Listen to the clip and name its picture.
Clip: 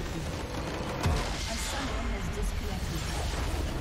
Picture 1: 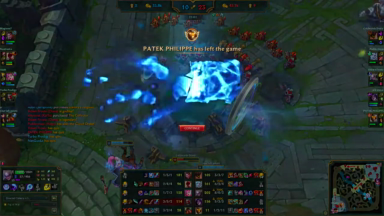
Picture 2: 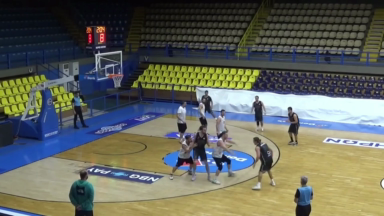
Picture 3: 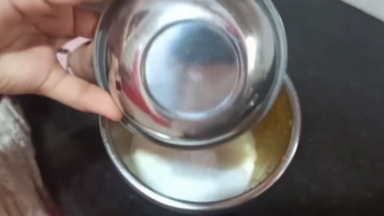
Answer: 1